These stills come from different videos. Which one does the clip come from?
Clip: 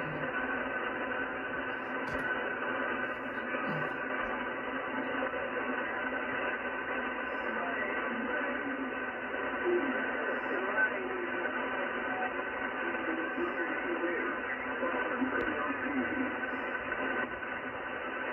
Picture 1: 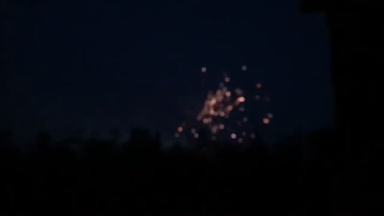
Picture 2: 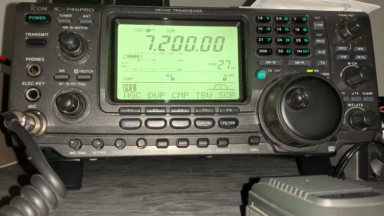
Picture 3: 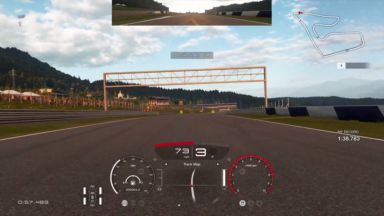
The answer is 2